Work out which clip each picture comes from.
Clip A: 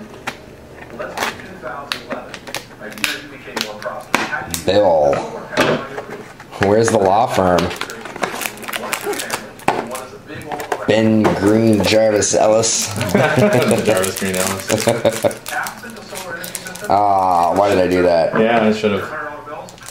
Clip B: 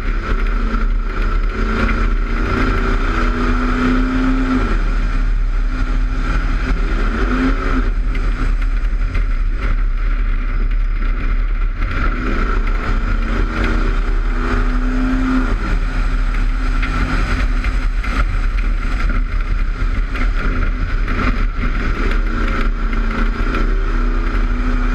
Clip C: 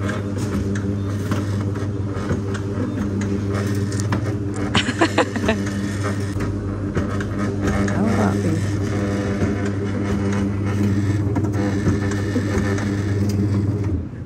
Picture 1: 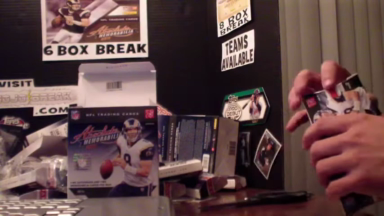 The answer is A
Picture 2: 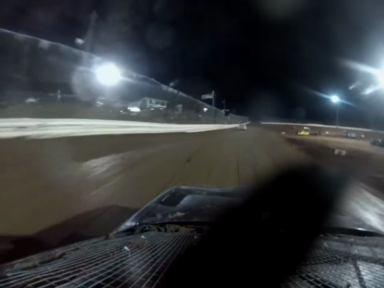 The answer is B